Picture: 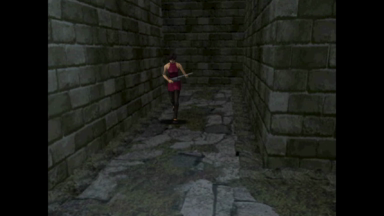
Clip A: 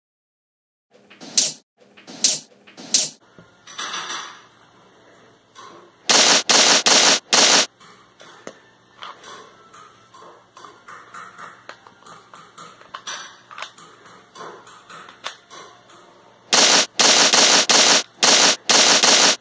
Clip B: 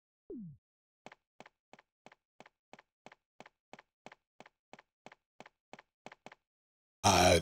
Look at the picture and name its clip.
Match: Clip B